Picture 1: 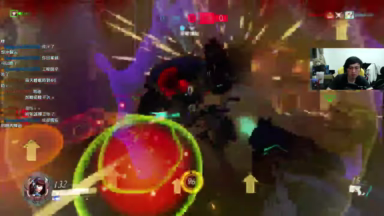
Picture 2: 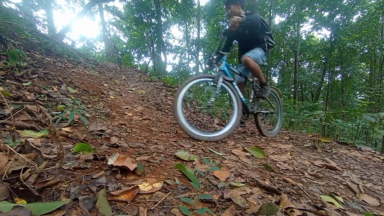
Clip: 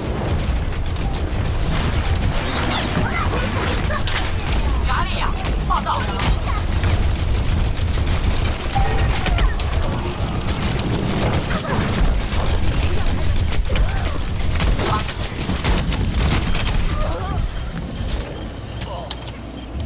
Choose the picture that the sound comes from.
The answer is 1